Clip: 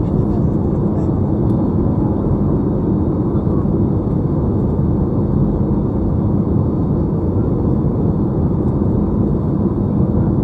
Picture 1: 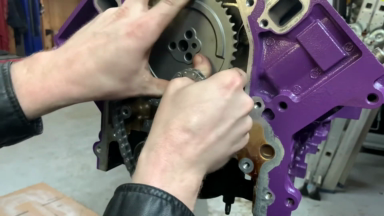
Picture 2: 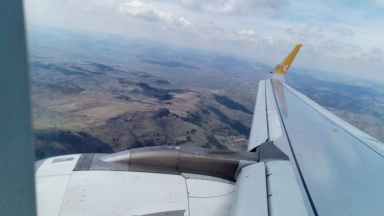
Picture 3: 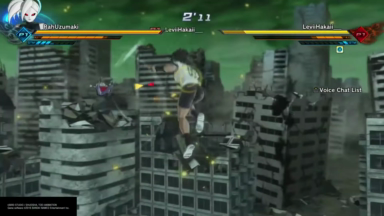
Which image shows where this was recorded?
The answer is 2